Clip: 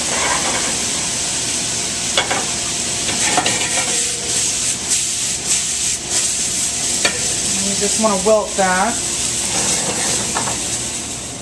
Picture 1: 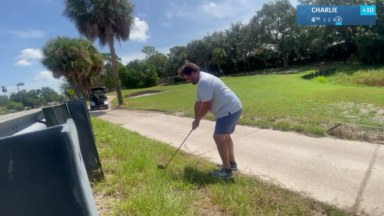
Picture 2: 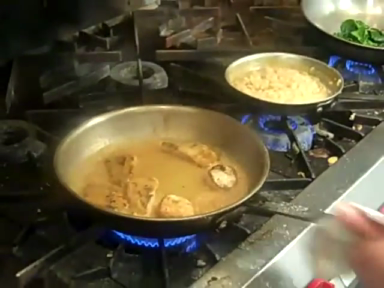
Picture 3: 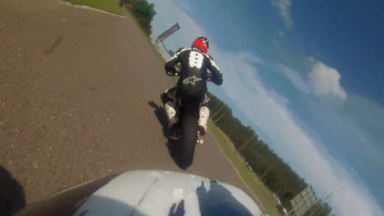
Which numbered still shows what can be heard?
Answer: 2